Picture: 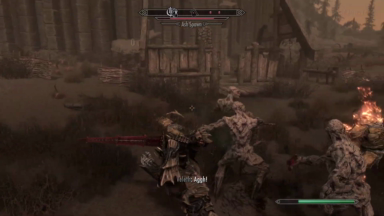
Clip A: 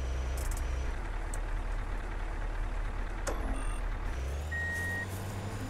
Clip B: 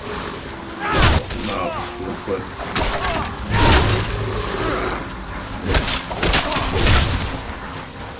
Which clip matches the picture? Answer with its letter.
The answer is B